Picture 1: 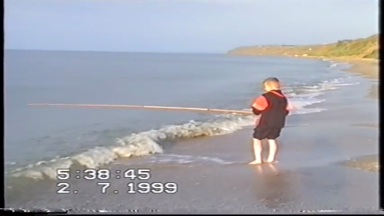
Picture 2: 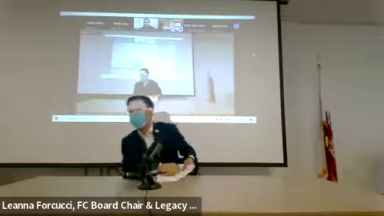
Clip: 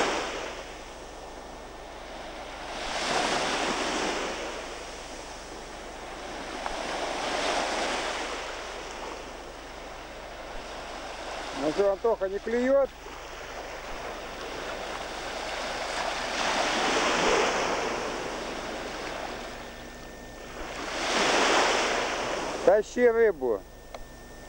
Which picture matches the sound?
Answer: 1